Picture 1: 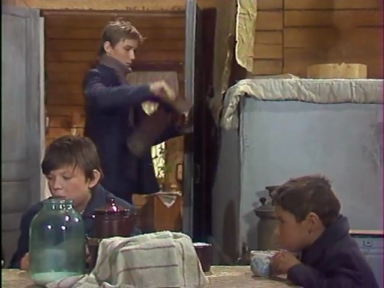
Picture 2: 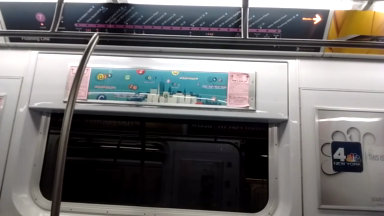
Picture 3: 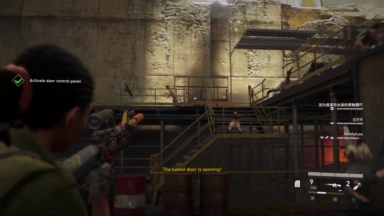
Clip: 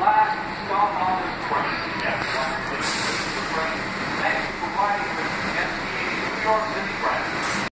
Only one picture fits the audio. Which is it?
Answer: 2